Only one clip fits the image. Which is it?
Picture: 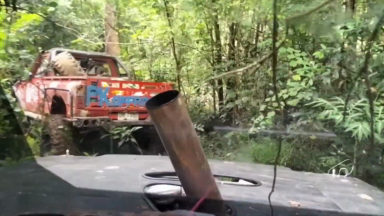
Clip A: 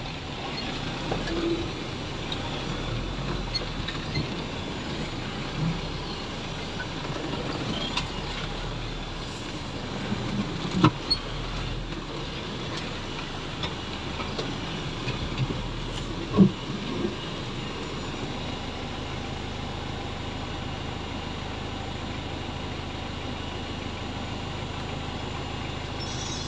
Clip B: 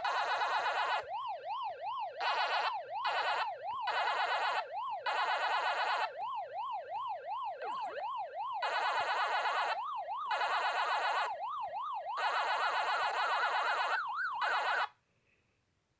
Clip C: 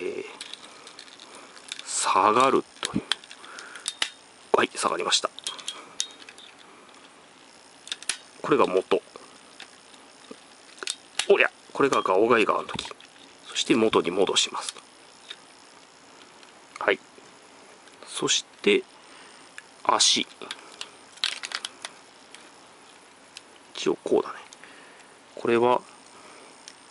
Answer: A